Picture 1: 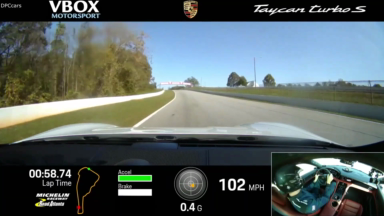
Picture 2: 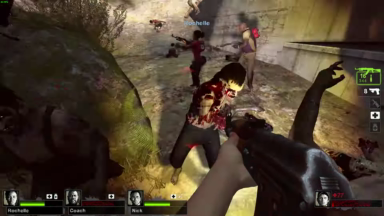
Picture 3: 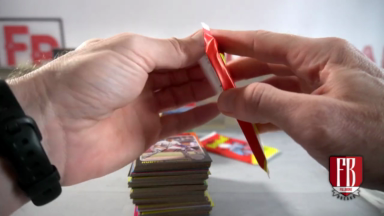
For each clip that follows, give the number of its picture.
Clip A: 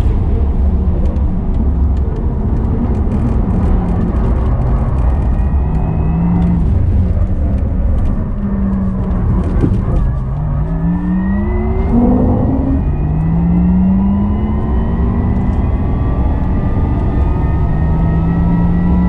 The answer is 1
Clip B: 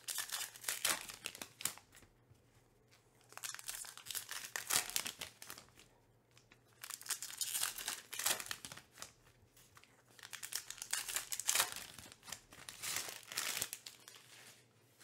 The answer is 3